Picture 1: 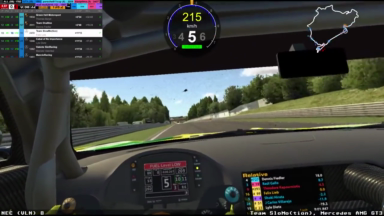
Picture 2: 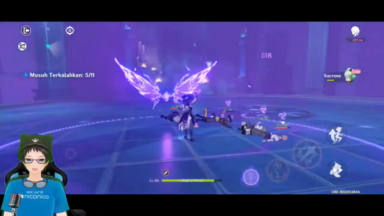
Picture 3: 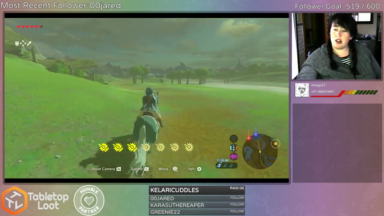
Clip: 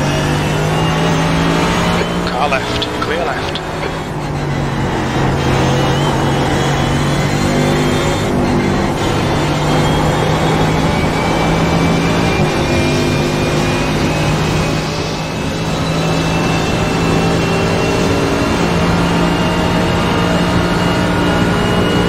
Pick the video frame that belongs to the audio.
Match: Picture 1